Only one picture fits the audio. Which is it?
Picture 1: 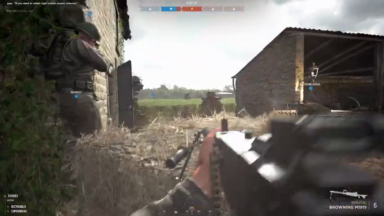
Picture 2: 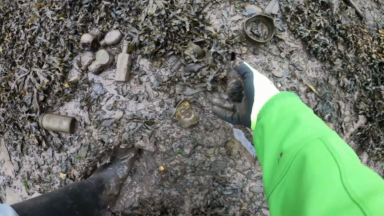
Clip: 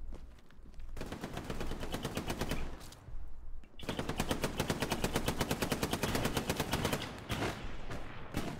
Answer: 1